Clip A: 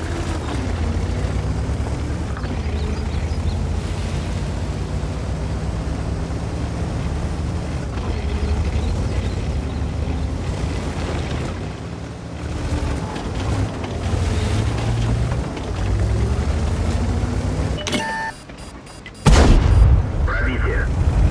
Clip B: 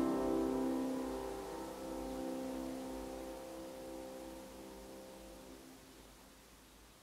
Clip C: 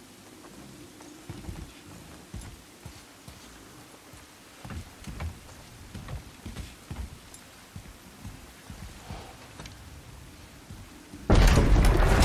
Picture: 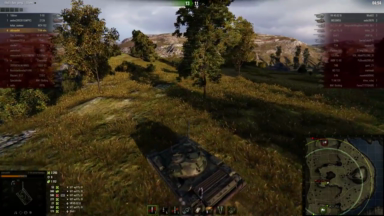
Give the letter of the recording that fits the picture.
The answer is A